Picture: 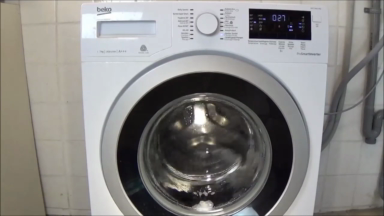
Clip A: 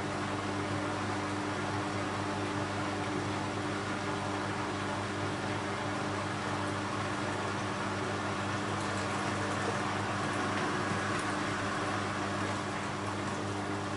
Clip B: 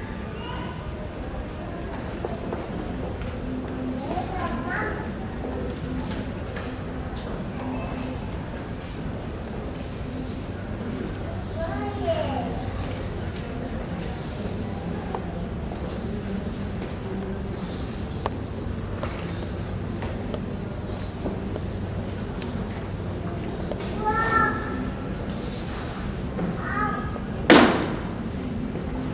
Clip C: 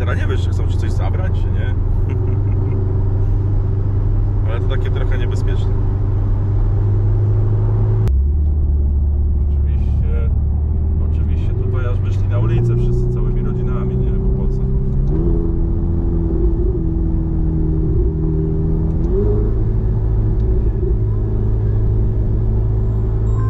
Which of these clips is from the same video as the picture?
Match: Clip A